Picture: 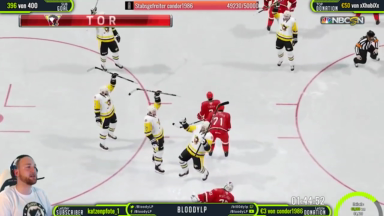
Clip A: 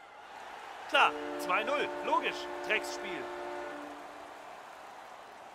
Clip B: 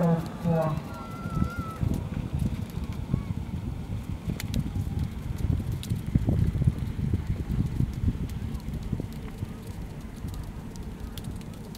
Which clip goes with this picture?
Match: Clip A